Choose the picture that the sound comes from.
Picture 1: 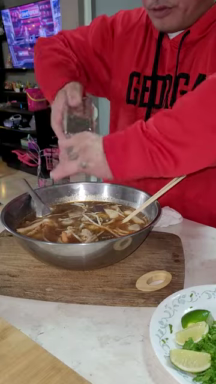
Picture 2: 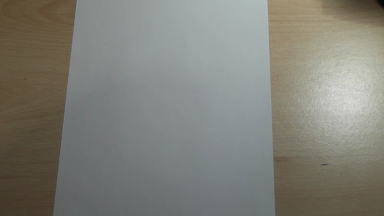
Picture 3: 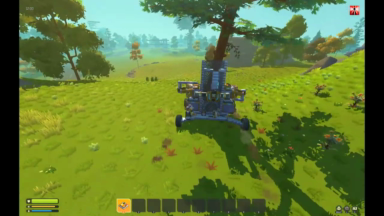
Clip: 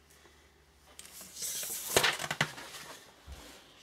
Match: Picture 2